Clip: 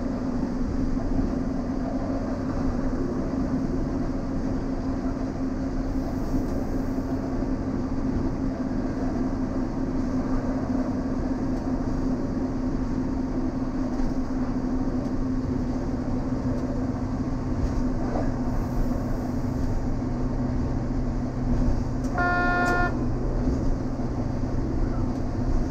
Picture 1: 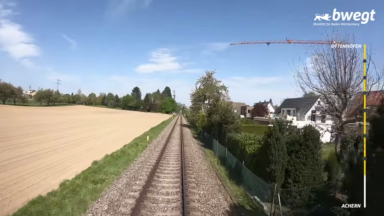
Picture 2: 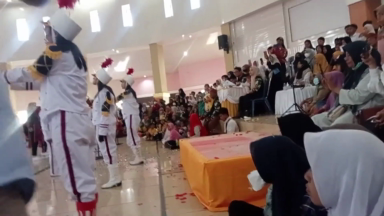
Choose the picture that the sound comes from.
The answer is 1